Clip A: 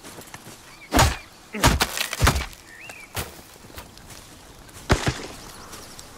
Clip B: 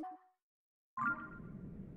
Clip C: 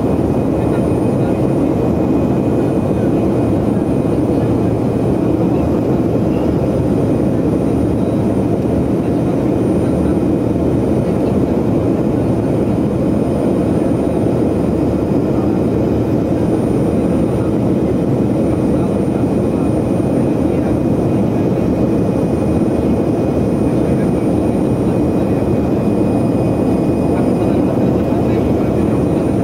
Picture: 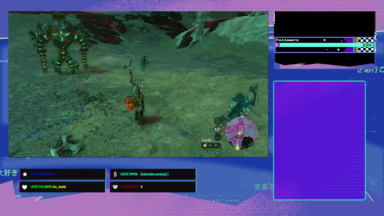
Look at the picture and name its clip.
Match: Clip B